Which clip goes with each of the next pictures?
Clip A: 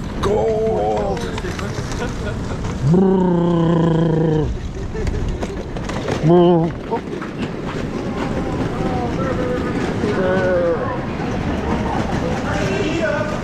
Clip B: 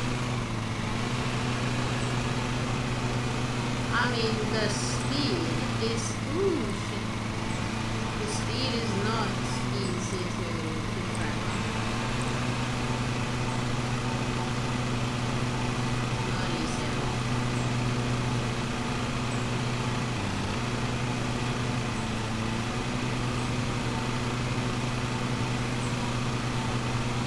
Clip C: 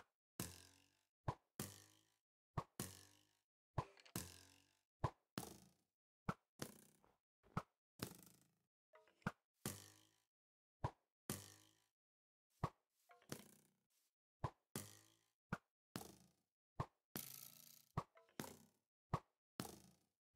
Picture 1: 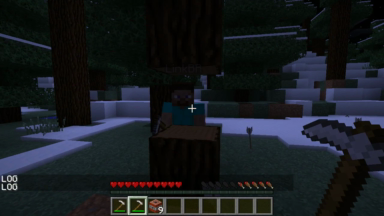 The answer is C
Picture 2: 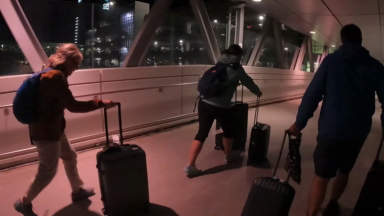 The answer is A